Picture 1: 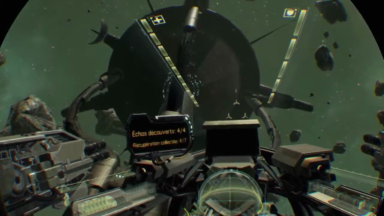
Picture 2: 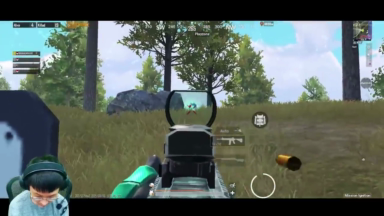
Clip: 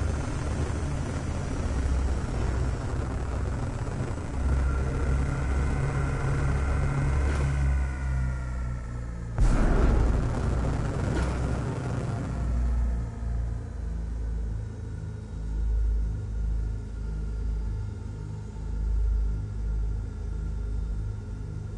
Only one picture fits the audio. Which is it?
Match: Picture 1